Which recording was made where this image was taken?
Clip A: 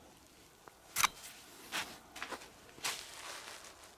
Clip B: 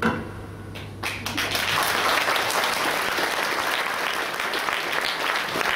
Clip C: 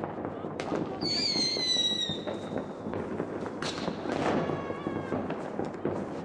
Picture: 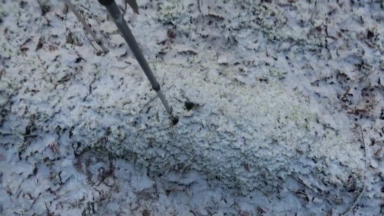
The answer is A